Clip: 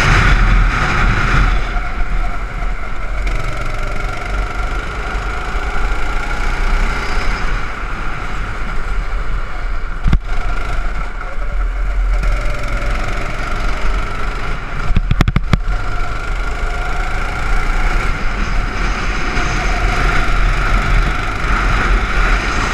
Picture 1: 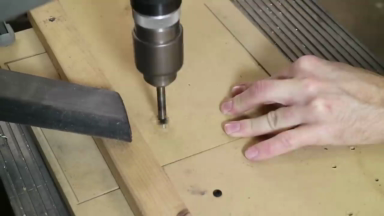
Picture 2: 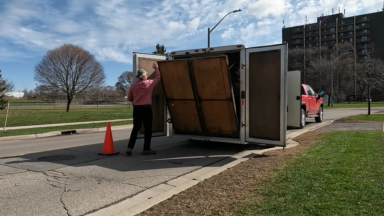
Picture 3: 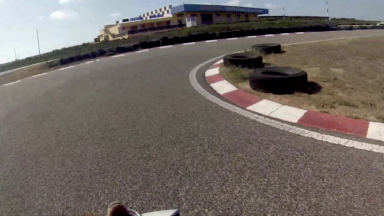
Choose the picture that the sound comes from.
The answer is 3